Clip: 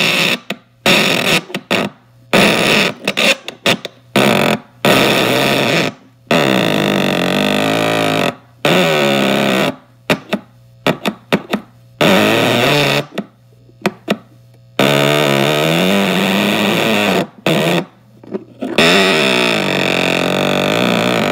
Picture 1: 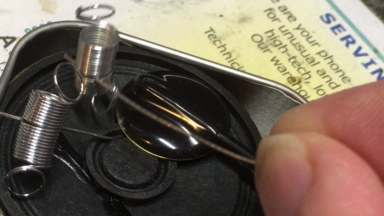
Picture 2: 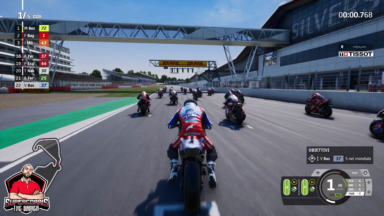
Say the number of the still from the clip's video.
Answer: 1